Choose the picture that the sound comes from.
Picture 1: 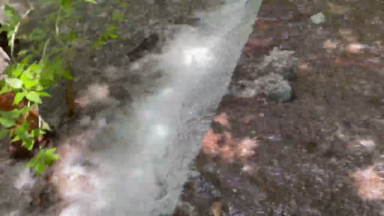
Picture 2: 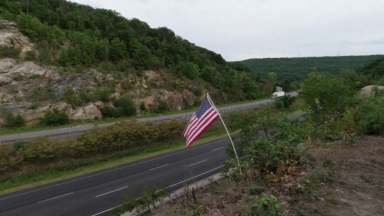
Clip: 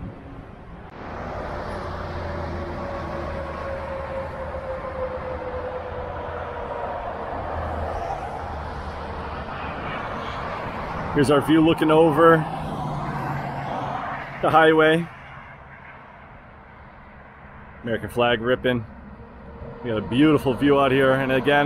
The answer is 2